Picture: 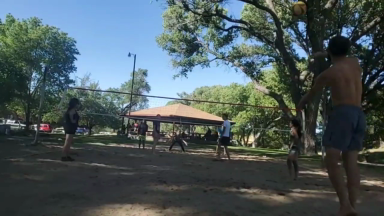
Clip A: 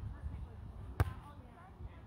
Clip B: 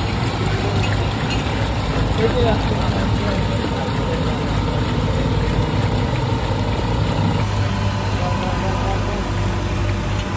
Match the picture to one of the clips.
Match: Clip A